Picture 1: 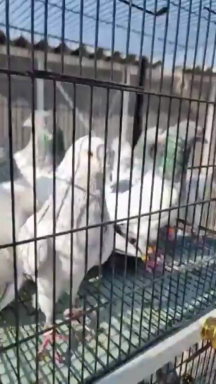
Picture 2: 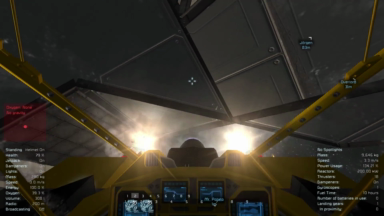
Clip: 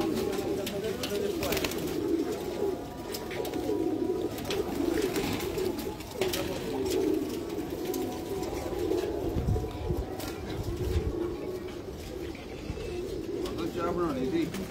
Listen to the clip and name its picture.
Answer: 1